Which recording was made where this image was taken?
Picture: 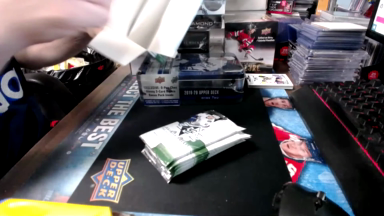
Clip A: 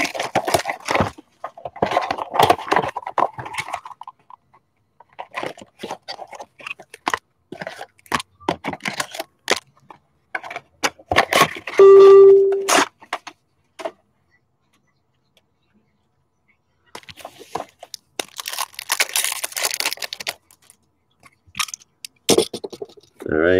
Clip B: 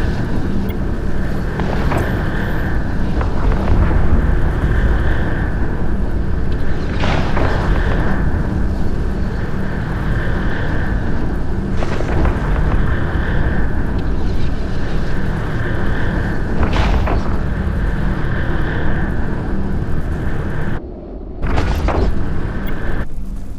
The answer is A